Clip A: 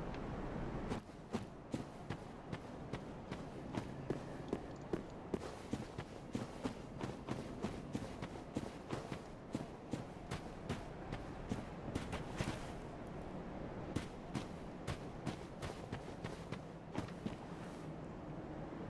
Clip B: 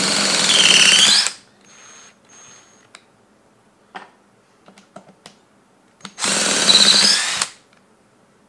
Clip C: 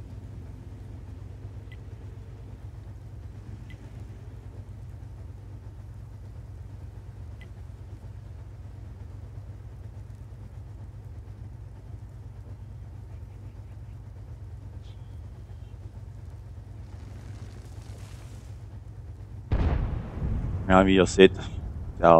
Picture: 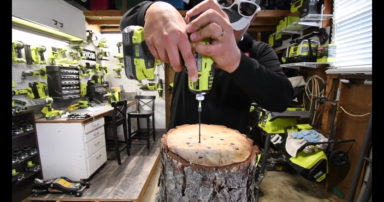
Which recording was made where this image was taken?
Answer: B